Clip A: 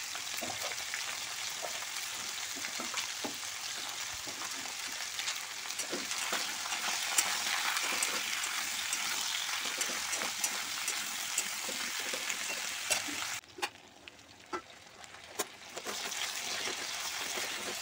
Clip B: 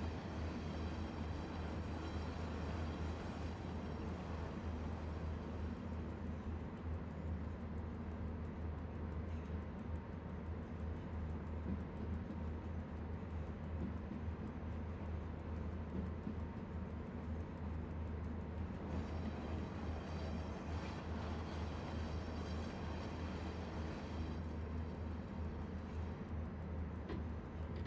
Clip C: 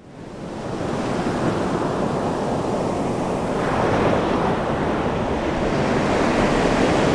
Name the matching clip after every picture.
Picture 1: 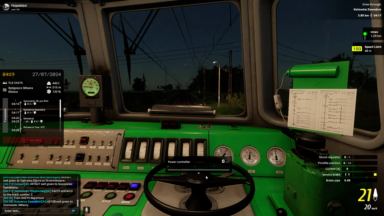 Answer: B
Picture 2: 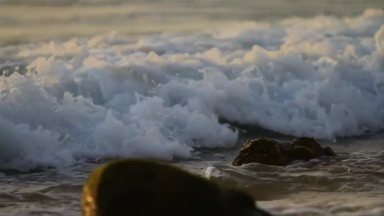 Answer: C